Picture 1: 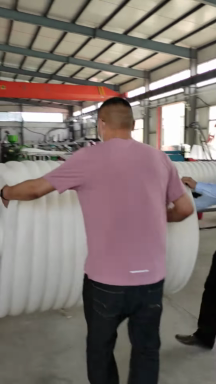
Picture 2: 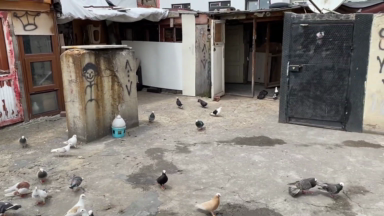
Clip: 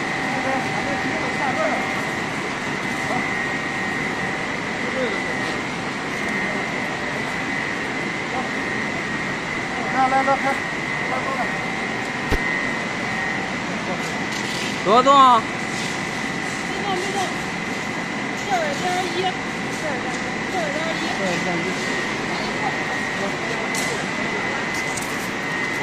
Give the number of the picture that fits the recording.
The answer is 1